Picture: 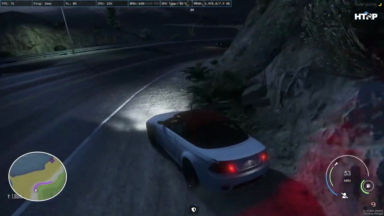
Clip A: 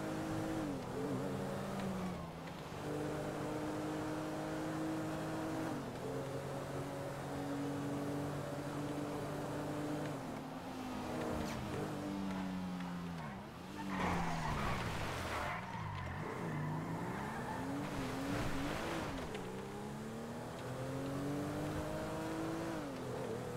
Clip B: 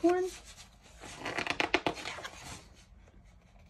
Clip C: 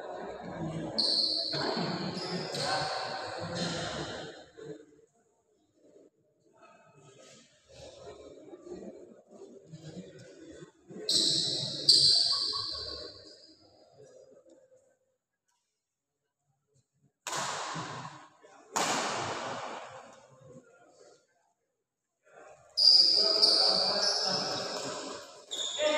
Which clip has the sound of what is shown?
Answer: A